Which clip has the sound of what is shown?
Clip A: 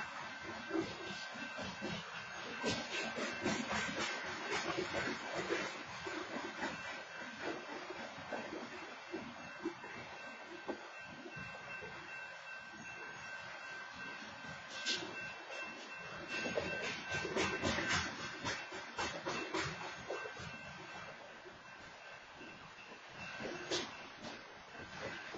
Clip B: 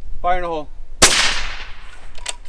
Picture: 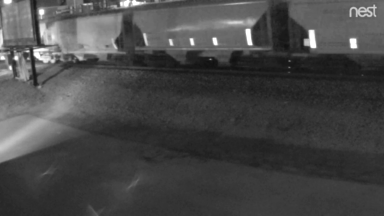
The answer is A